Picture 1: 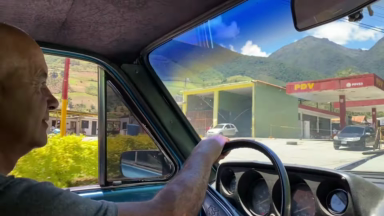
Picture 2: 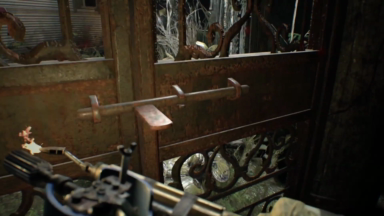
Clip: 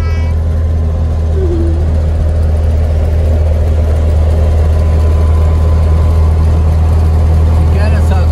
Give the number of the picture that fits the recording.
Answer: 1